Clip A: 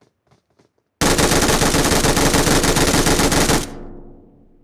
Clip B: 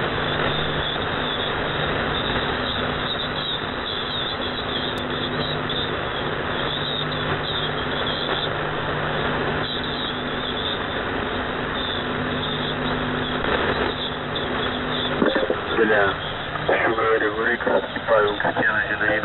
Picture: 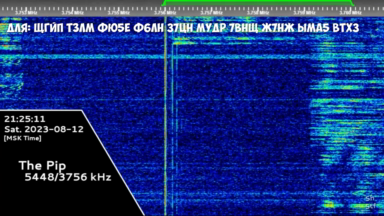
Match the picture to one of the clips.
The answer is B